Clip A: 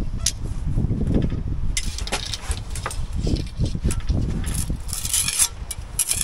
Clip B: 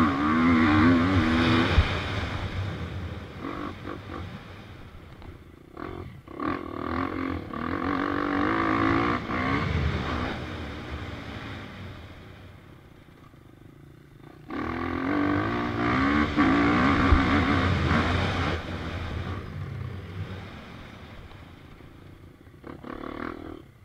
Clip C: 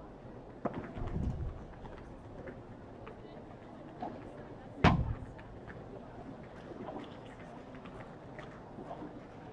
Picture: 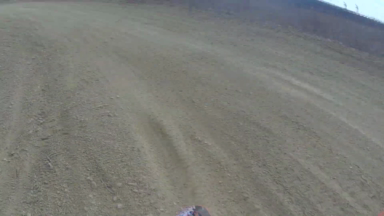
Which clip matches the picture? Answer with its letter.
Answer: B